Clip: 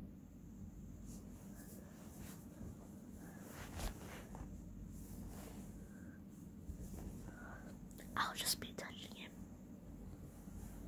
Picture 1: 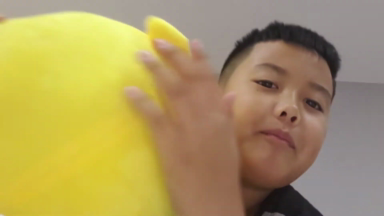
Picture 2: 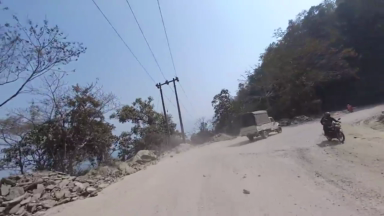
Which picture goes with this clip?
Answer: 1